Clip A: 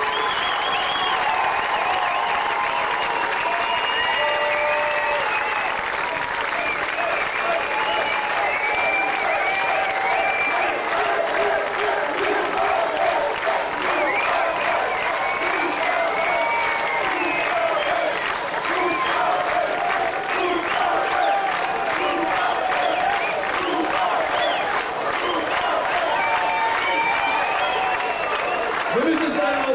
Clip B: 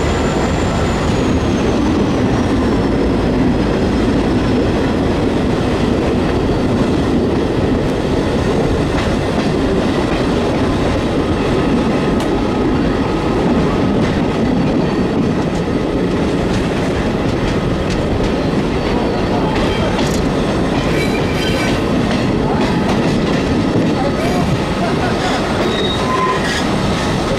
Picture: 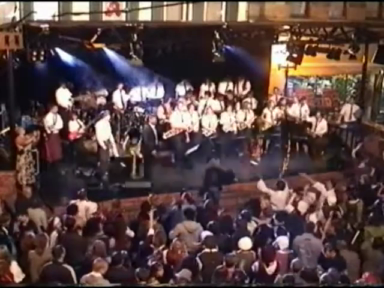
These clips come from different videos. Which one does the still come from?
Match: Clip A